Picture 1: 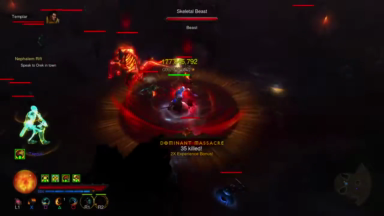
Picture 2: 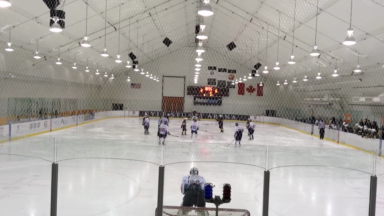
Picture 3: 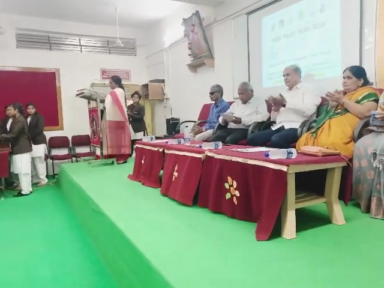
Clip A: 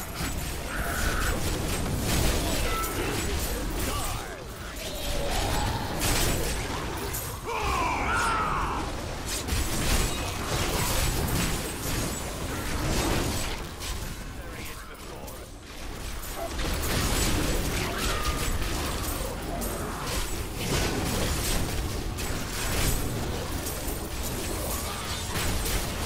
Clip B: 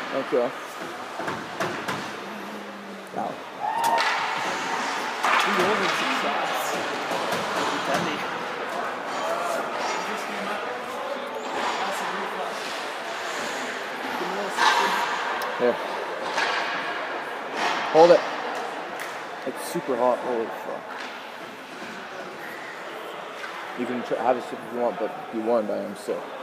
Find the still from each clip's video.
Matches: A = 1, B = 2